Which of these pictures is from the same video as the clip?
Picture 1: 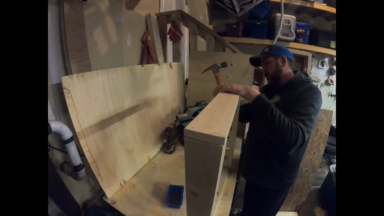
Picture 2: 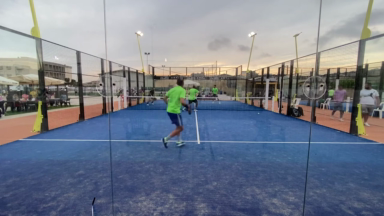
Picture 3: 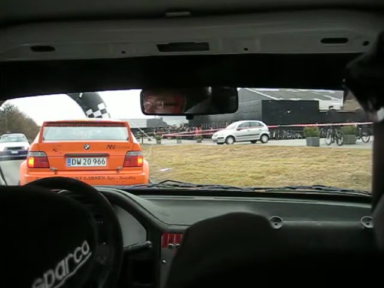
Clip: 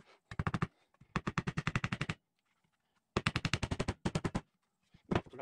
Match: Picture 1